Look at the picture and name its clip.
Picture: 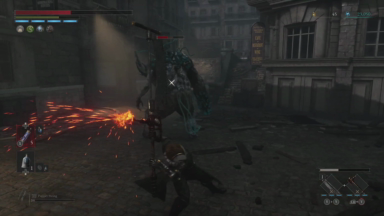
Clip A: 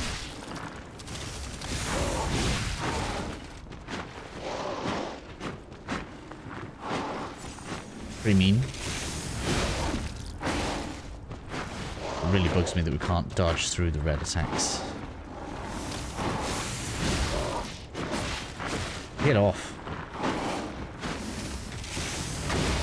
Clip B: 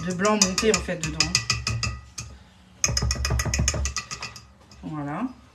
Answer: A